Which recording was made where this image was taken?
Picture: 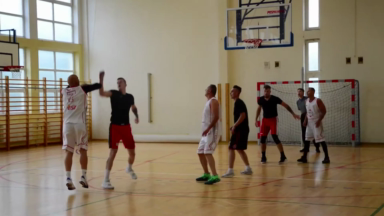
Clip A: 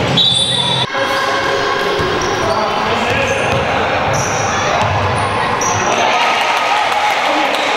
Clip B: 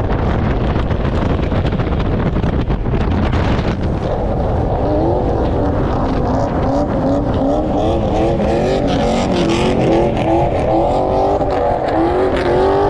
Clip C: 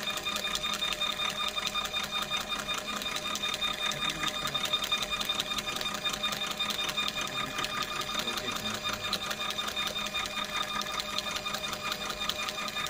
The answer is A